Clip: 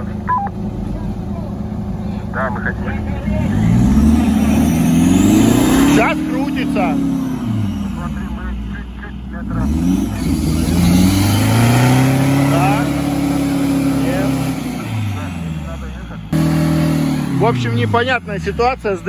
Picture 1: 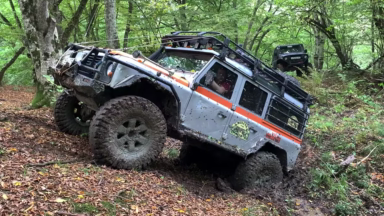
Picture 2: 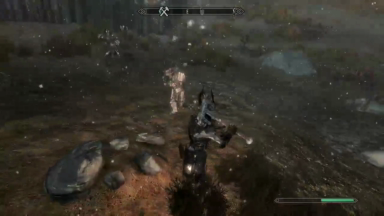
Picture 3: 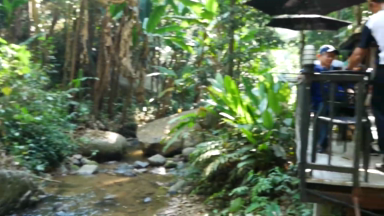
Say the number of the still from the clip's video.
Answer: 1